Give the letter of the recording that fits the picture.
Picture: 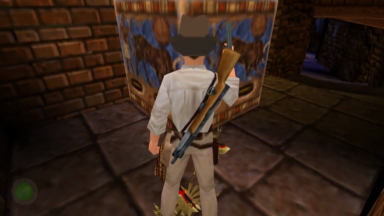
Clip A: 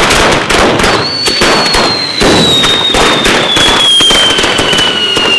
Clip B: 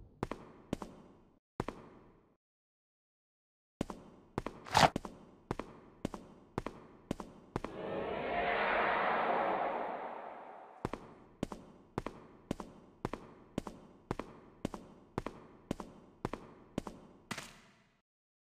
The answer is B